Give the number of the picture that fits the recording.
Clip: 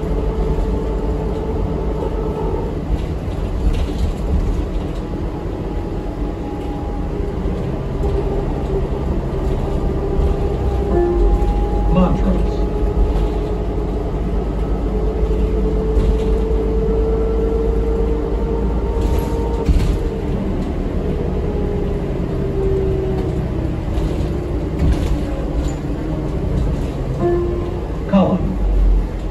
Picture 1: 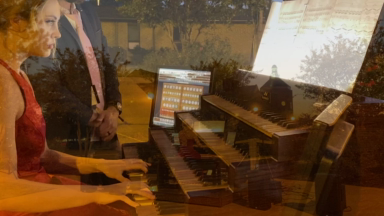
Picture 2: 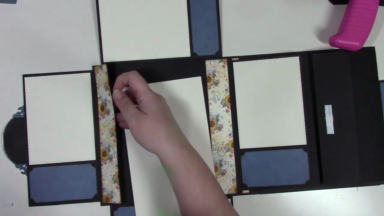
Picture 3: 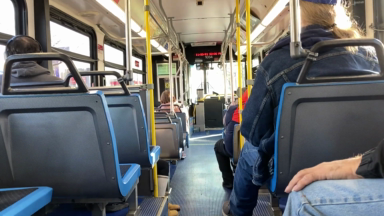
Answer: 3